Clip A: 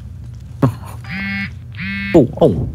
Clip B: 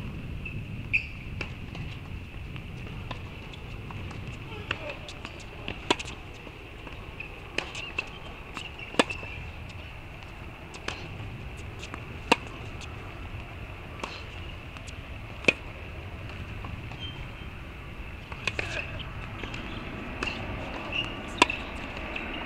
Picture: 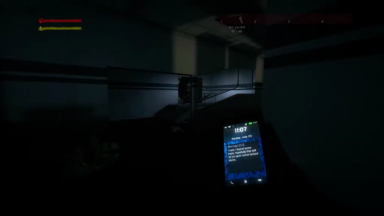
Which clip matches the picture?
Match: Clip A